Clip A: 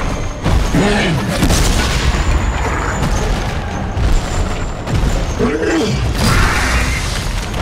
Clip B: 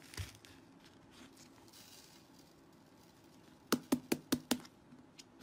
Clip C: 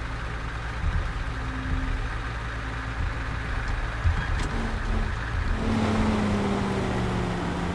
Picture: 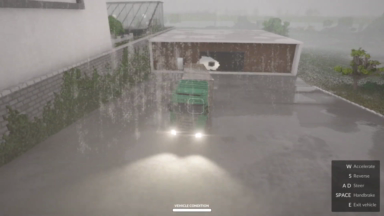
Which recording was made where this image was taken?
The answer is C